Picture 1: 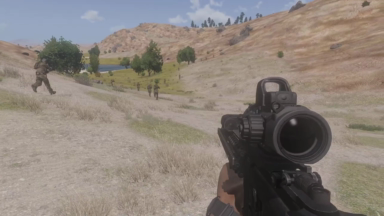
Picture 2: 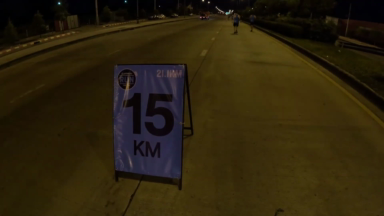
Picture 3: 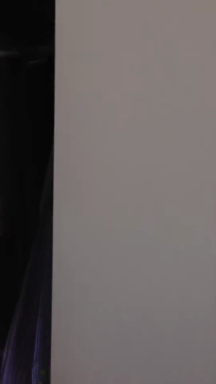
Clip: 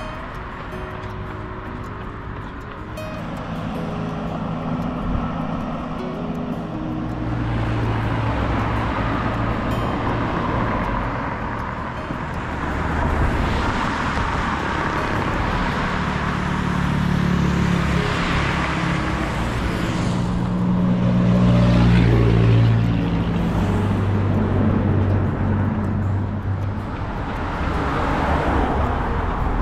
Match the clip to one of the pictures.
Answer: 2